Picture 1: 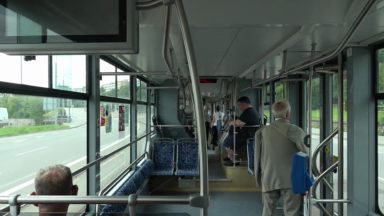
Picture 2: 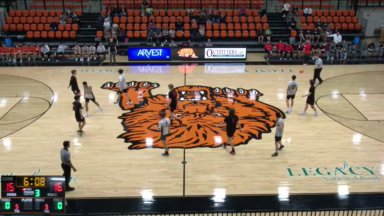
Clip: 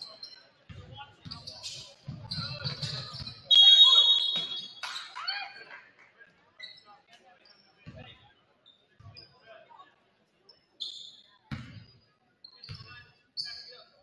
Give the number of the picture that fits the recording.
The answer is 2